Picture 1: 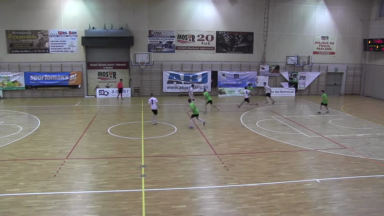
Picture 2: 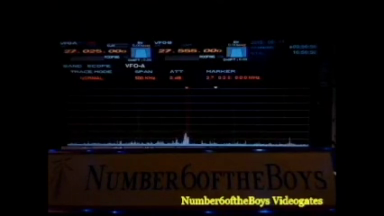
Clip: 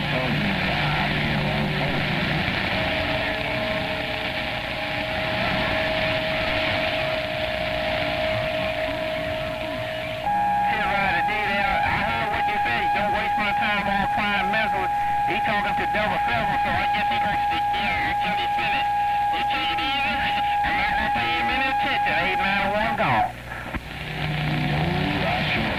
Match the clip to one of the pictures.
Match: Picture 2